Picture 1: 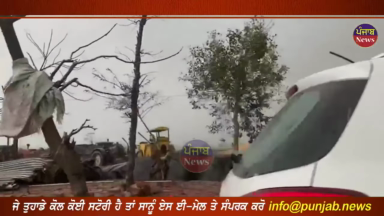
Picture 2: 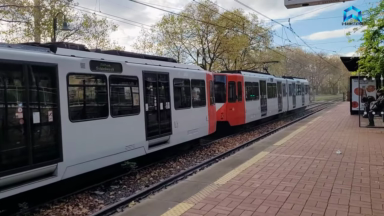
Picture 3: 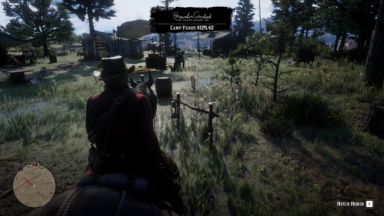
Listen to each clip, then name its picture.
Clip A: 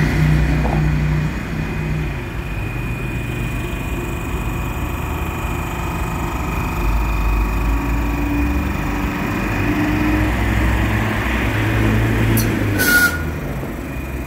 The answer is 2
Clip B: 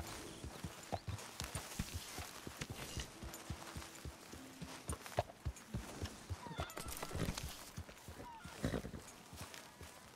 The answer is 3